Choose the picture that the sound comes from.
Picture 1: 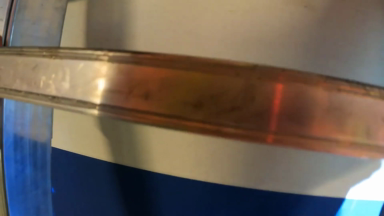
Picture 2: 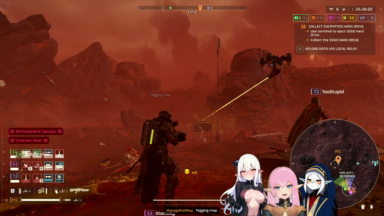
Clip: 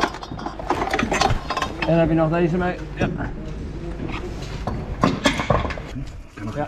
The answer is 1